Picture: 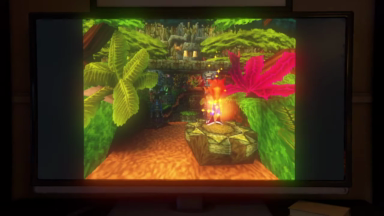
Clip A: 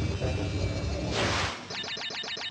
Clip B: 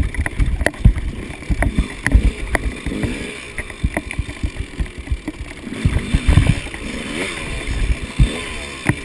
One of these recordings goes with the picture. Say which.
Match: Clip A